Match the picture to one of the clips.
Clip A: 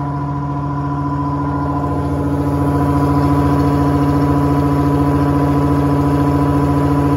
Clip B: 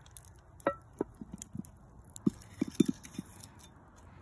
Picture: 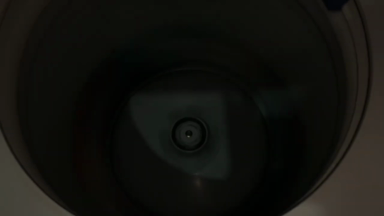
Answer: A